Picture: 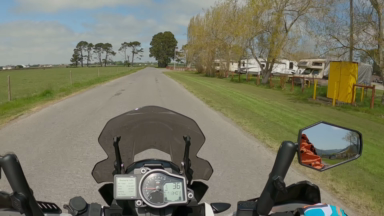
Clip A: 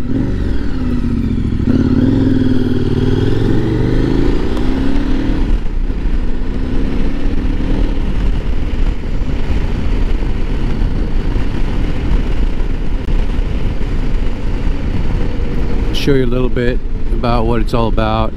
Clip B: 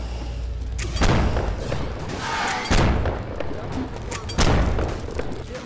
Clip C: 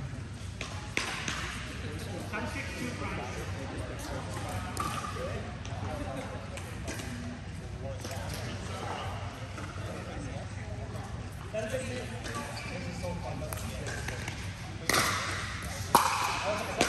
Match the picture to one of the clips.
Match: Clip A